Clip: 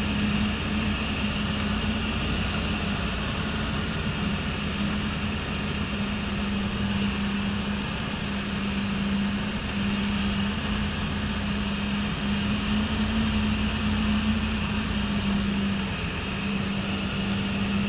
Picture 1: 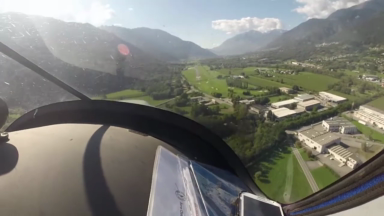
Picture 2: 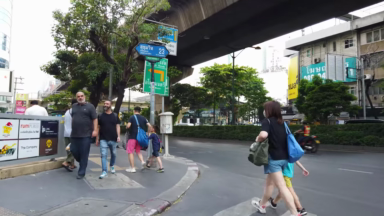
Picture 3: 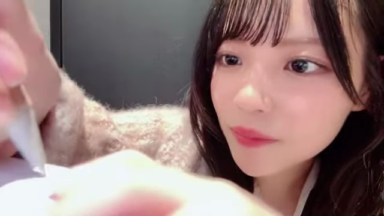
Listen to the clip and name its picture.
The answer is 1